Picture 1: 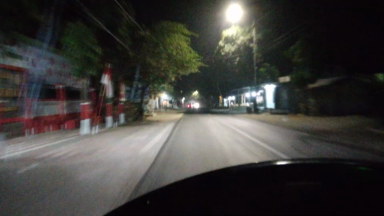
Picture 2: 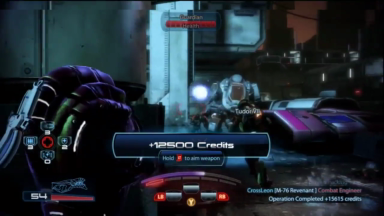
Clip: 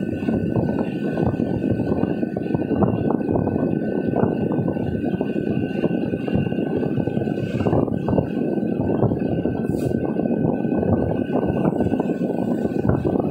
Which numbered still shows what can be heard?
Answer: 1